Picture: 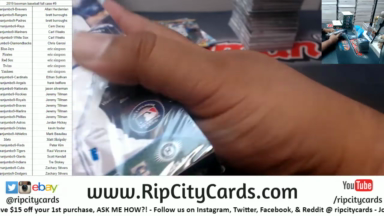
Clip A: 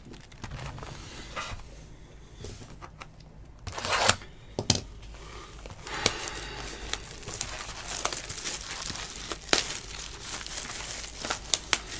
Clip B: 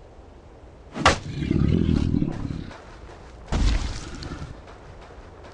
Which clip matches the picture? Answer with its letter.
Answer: A